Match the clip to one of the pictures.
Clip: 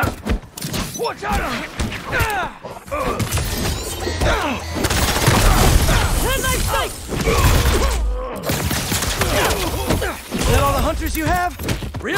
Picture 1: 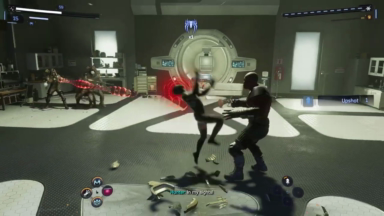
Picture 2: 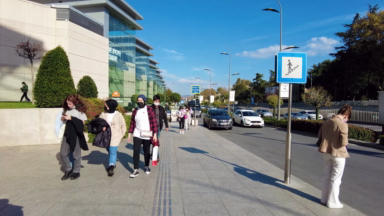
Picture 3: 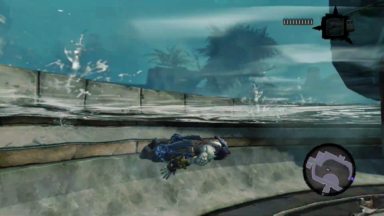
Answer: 1